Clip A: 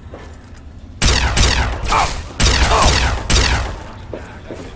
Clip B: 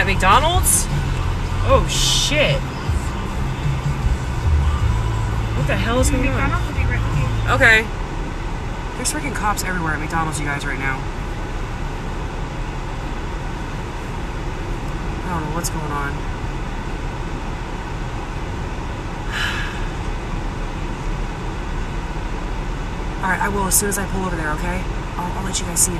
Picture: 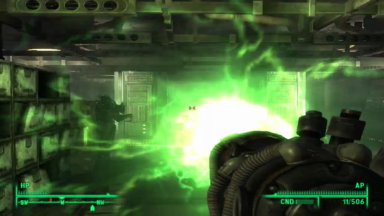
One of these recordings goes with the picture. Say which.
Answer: A